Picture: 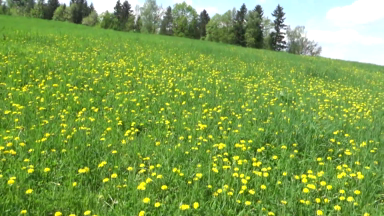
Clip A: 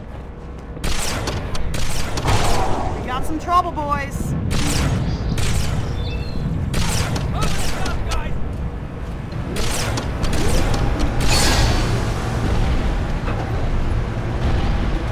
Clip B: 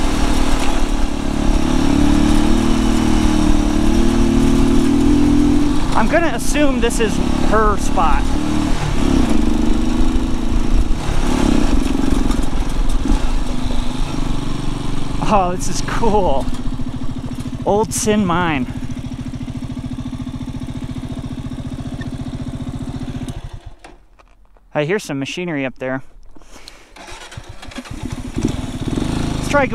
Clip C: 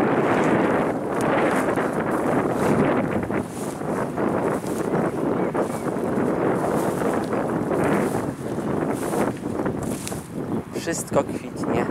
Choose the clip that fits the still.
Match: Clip C